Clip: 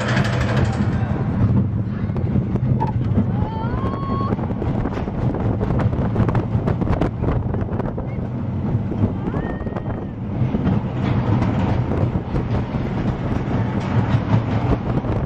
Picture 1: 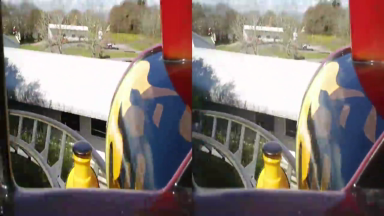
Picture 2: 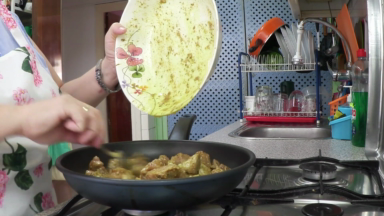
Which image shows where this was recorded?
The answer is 1